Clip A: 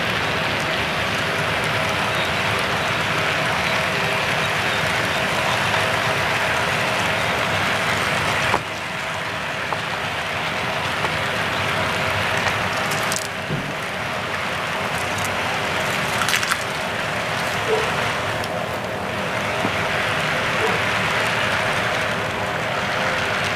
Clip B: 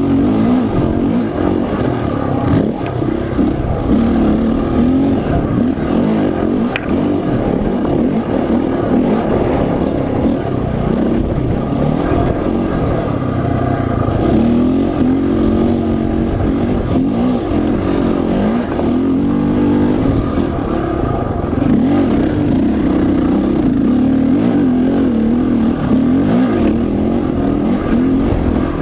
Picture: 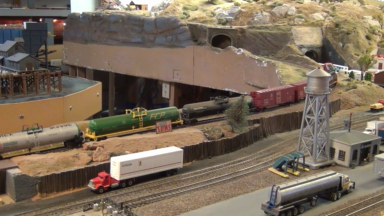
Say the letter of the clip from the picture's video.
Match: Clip A